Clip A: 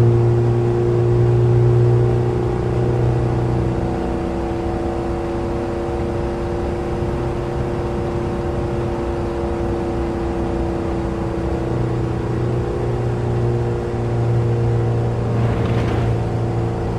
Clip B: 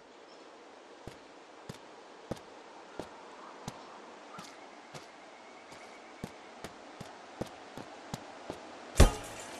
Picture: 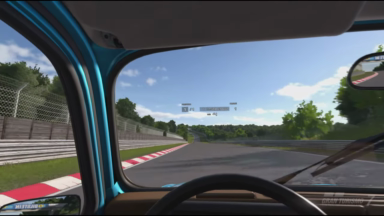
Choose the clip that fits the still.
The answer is A